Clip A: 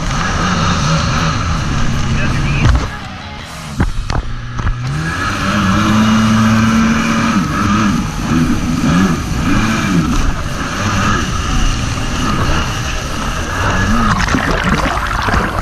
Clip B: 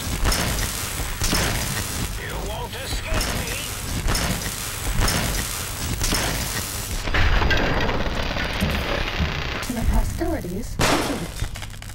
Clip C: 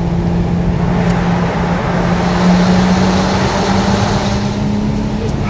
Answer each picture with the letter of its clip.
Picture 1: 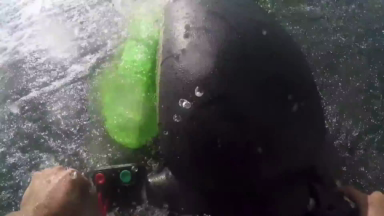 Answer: A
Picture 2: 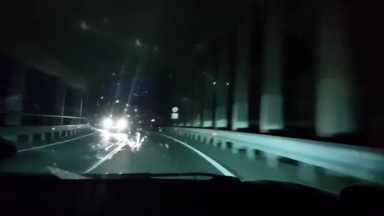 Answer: C